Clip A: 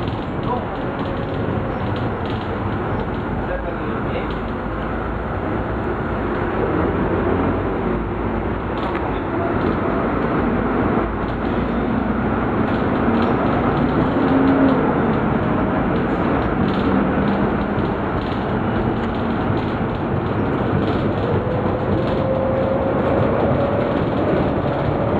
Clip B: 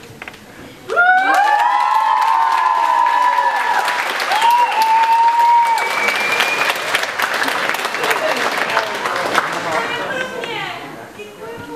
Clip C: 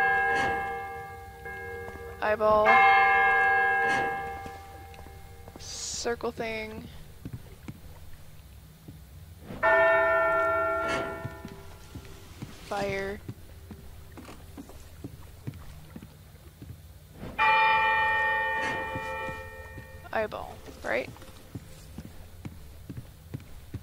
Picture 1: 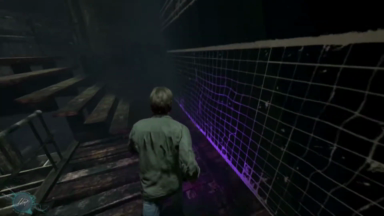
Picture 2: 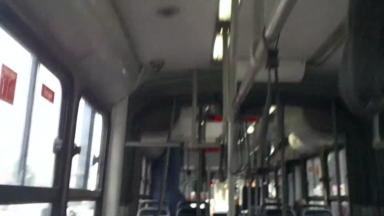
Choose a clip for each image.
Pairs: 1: C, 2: A